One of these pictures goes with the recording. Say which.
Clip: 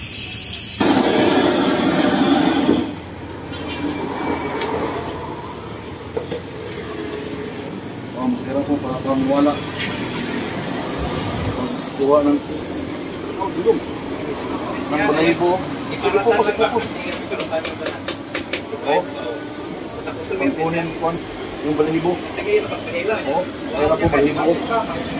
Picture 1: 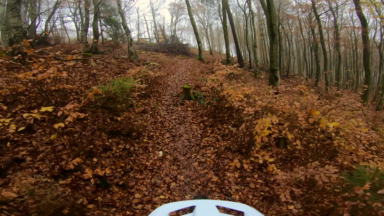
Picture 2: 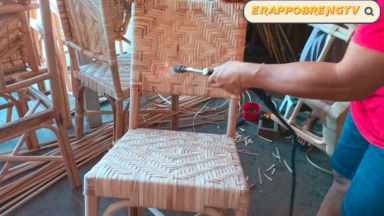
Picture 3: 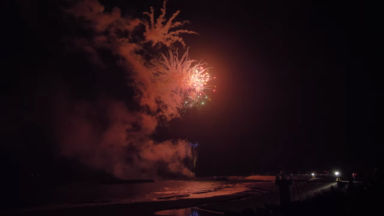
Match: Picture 2